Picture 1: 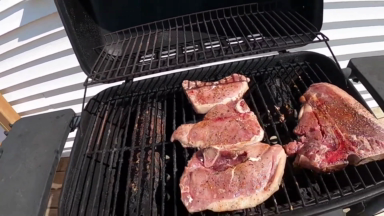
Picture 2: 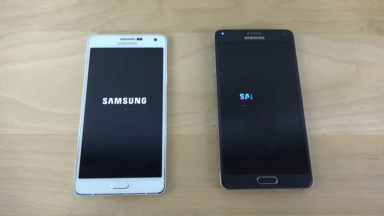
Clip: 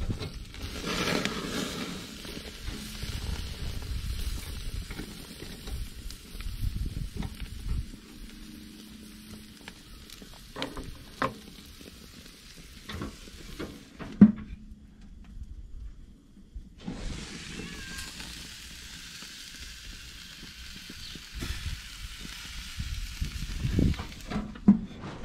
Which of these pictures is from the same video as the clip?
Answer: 1